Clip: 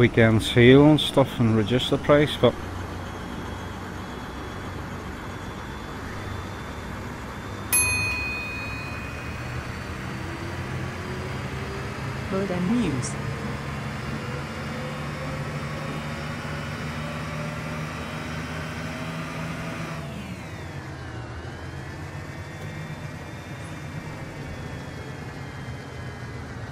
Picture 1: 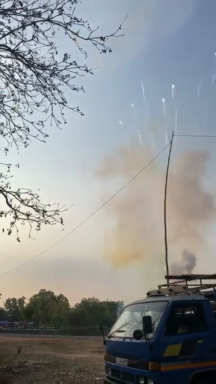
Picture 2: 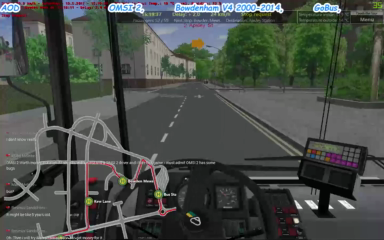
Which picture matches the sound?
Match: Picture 2